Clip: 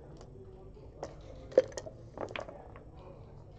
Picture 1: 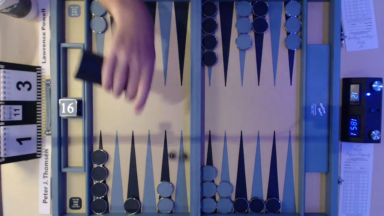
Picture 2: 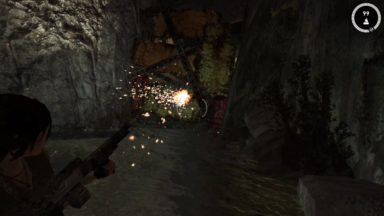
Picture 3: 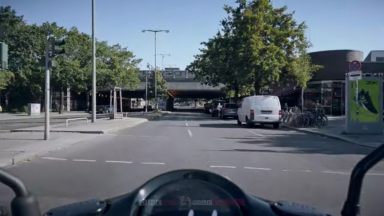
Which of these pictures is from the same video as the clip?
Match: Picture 1